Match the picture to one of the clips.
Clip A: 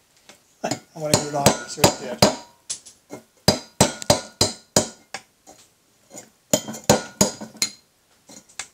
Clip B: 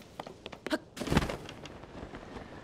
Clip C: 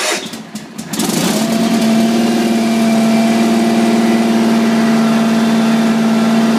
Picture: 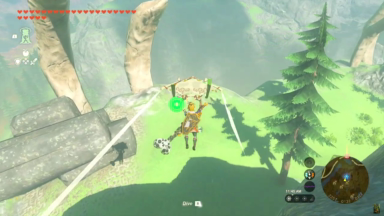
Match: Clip B